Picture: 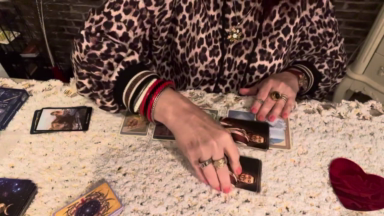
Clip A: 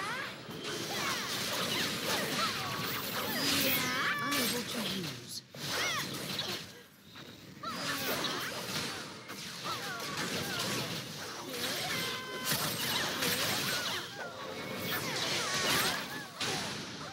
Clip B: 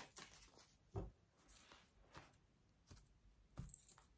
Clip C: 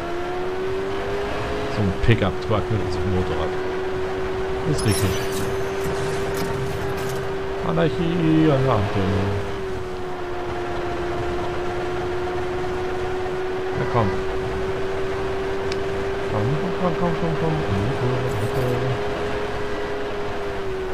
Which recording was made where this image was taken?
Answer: B